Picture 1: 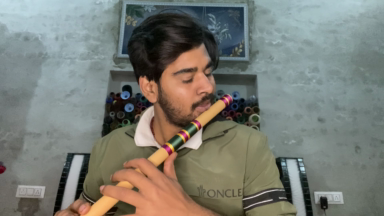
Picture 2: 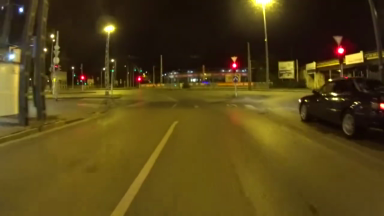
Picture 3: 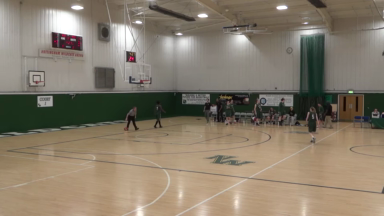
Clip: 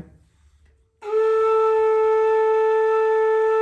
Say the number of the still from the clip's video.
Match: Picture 1